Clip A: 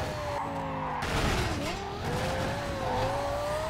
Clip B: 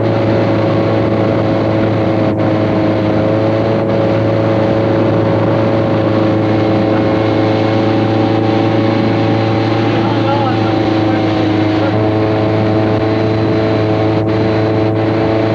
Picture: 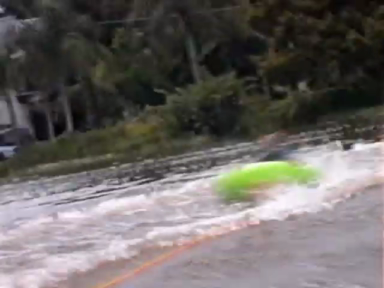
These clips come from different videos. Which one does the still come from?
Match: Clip B